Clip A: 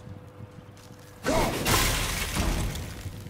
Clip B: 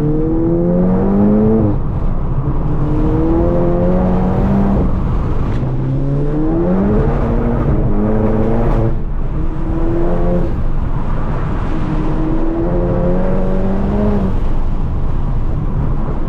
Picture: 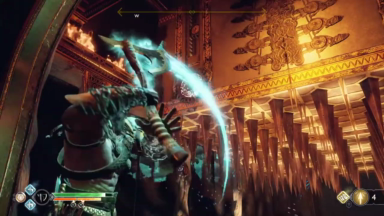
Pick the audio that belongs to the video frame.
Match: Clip A